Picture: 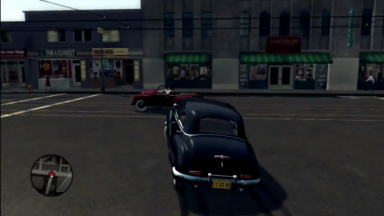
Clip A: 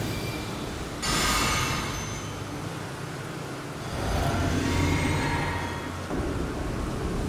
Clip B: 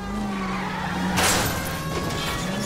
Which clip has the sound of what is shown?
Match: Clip B